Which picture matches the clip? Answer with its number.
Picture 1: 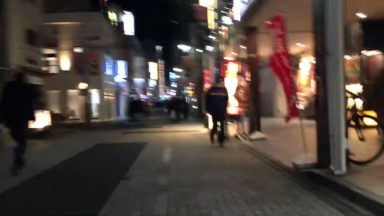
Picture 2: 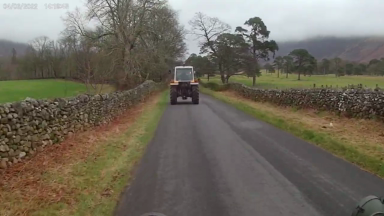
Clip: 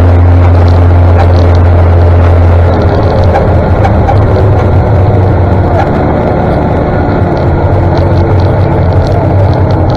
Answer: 2